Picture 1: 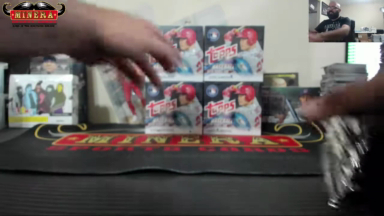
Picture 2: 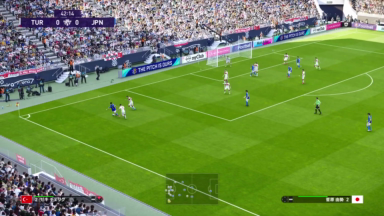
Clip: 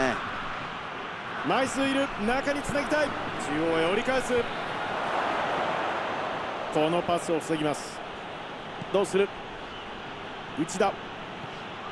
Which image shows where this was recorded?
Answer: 2